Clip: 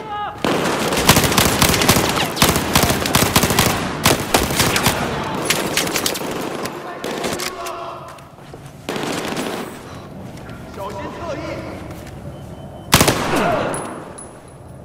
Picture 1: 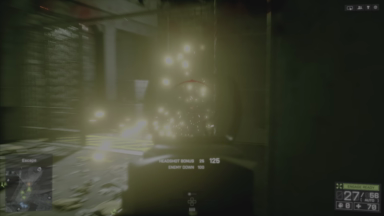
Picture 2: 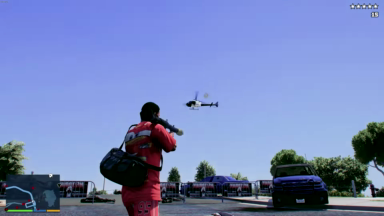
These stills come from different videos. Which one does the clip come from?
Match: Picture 1